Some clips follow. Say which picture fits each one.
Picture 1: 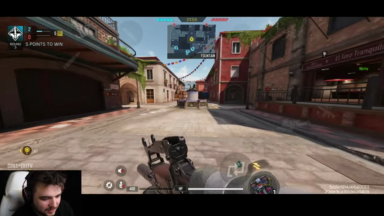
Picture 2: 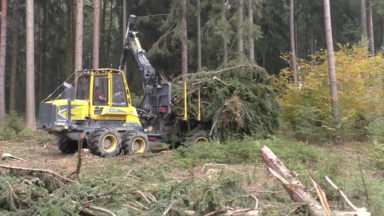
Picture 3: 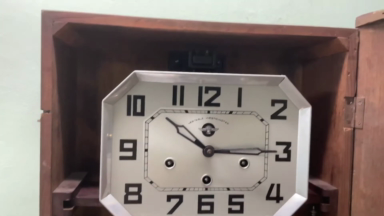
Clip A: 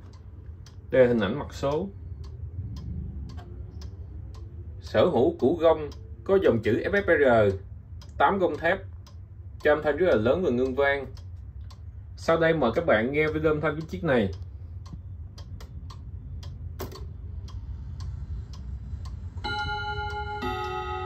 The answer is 3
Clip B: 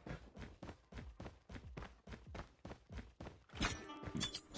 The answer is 1